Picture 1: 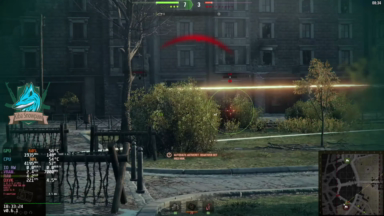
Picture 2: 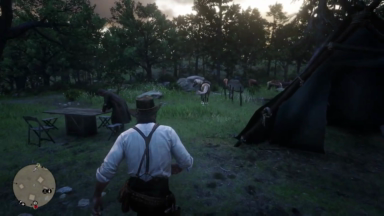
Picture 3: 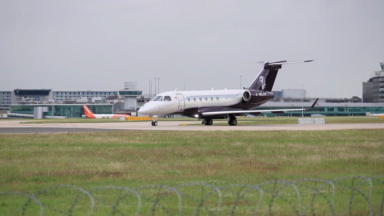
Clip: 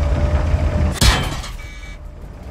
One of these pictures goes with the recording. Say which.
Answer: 1